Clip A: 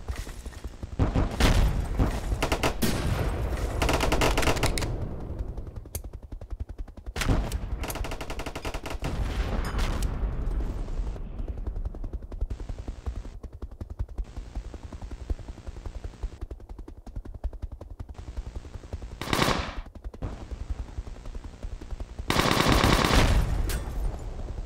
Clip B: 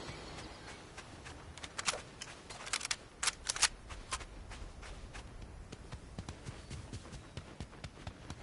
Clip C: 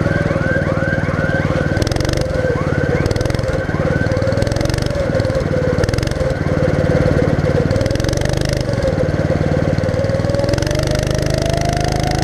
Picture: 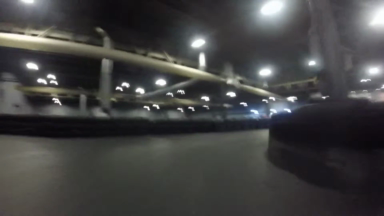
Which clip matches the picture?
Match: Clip C